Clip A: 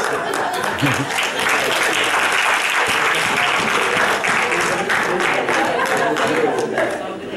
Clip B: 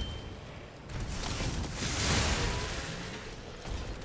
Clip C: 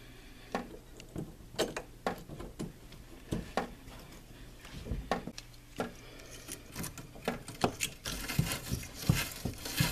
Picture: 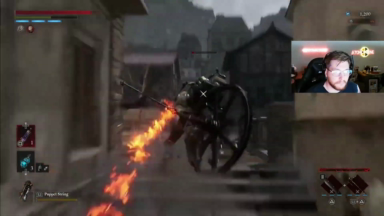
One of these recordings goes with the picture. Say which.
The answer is B